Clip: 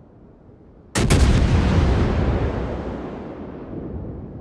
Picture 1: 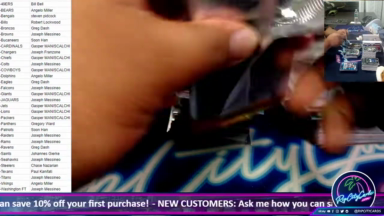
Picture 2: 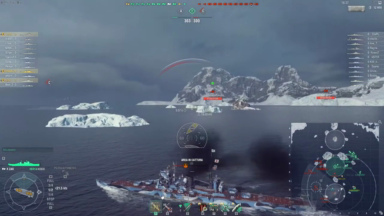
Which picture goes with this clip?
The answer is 2